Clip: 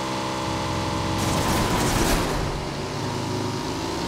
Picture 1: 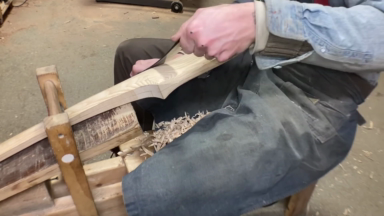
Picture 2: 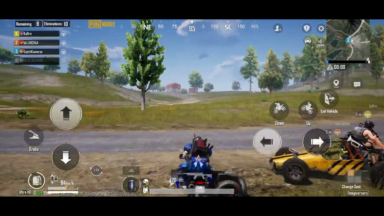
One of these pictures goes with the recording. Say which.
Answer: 2